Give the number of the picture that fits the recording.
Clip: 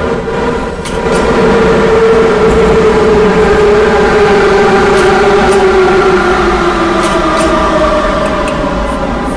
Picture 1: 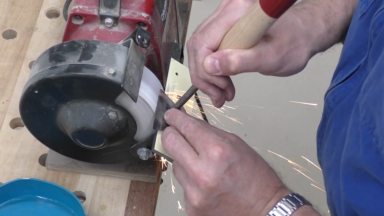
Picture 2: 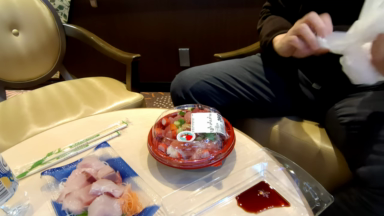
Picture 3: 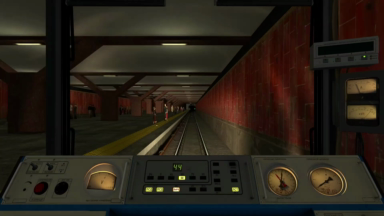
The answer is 3